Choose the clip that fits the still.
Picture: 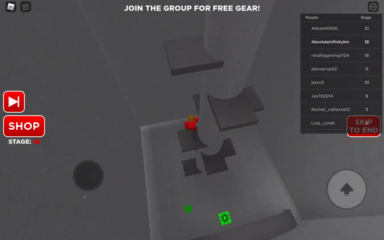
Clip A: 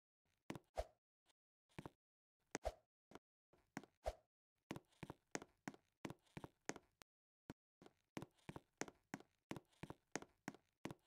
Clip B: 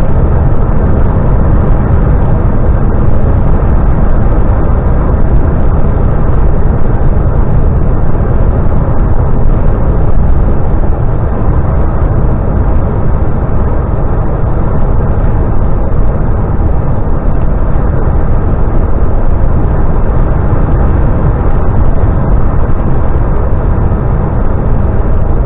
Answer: A